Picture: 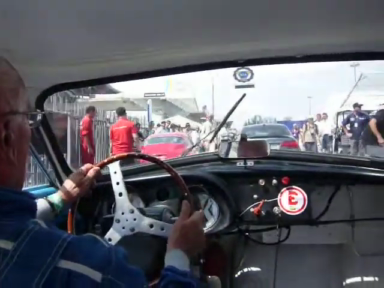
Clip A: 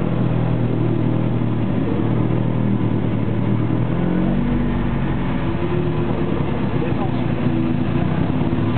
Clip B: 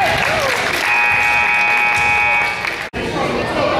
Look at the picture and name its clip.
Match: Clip A